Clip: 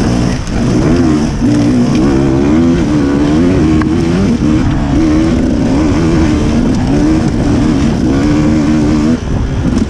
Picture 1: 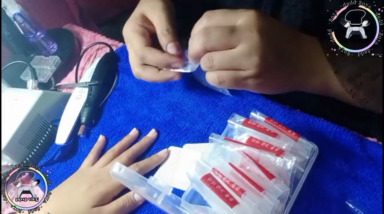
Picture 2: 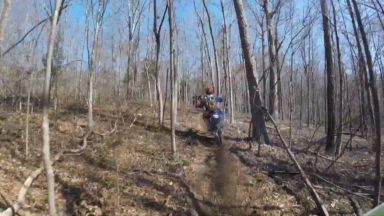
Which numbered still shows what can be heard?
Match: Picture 2